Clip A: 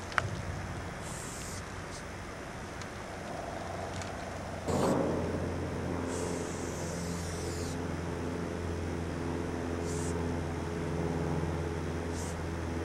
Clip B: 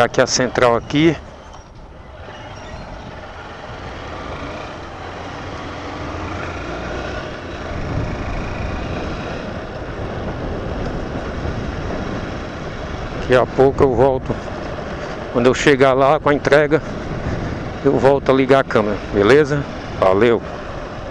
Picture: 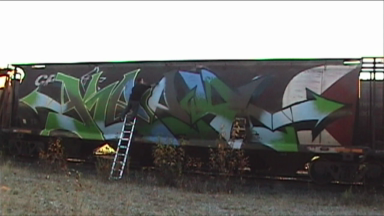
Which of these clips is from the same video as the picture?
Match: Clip A